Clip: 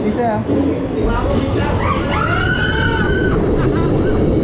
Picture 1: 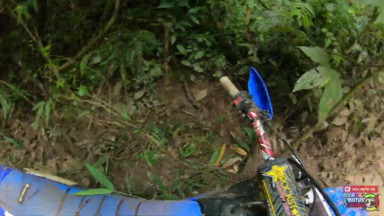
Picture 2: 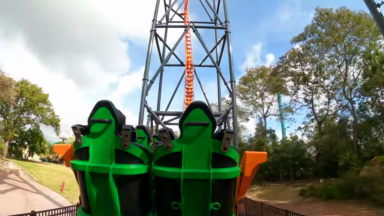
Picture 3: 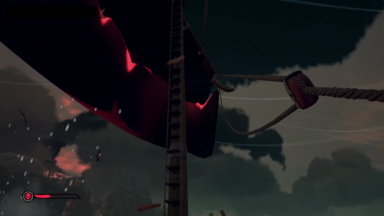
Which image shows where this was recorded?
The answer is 2